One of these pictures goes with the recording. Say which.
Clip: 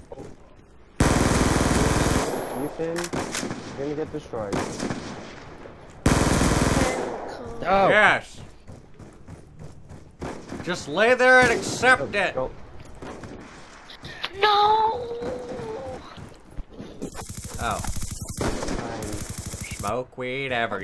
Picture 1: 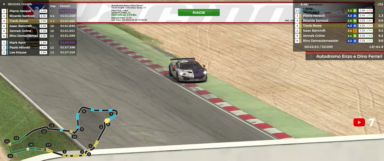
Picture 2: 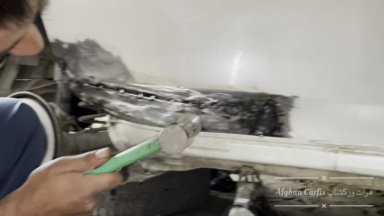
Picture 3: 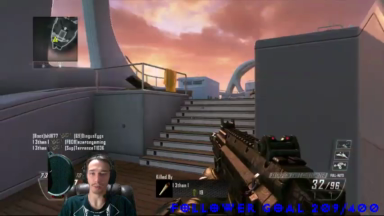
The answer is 3